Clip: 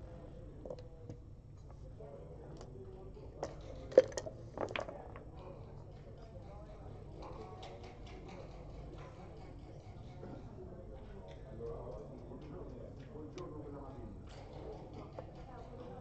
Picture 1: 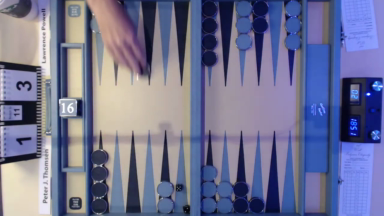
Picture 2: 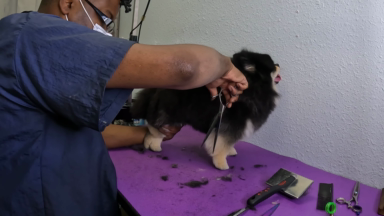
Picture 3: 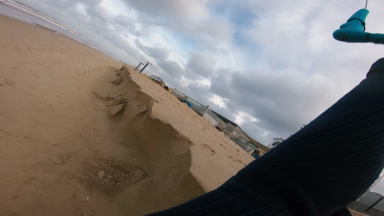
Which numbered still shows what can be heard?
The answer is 1